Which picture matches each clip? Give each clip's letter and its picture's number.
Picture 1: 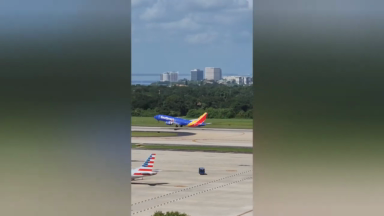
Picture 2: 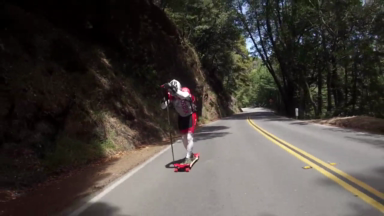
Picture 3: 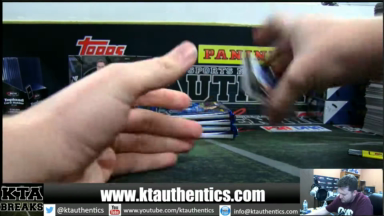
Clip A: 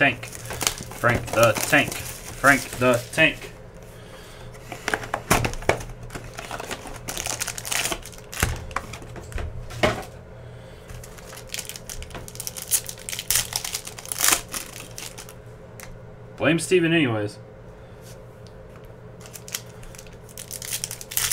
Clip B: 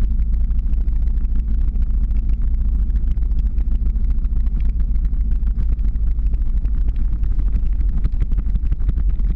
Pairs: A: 3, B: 2